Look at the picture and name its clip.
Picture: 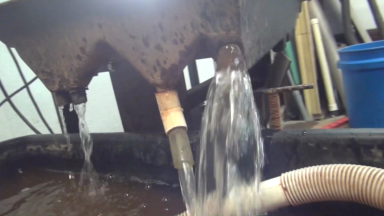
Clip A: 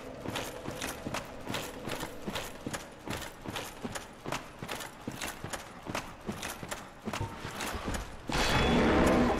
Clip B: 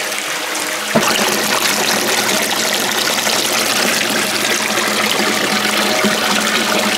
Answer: B